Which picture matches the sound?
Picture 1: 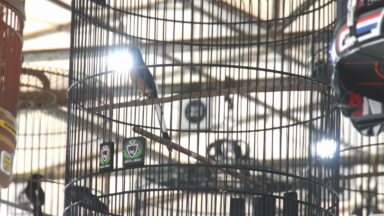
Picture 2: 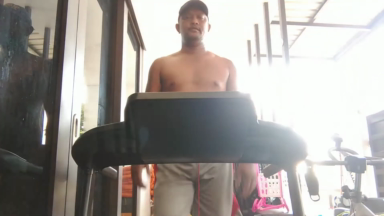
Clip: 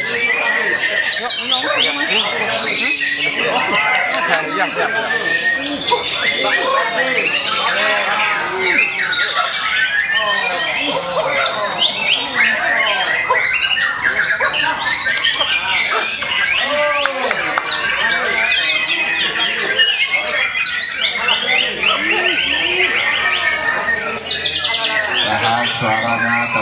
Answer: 1